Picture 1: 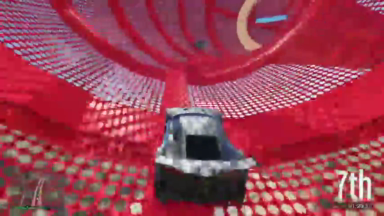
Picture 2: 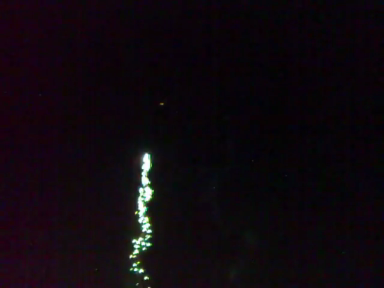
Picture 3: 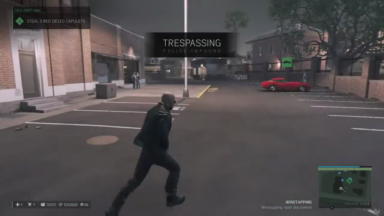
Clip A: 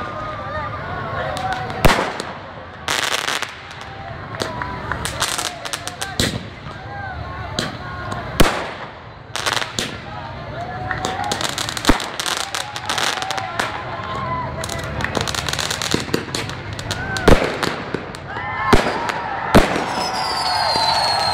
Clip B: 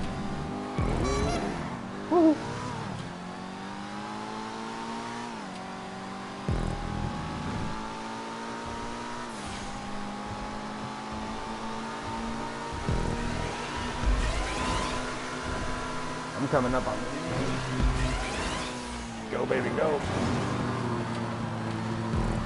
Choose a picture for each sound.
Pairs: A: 2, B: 1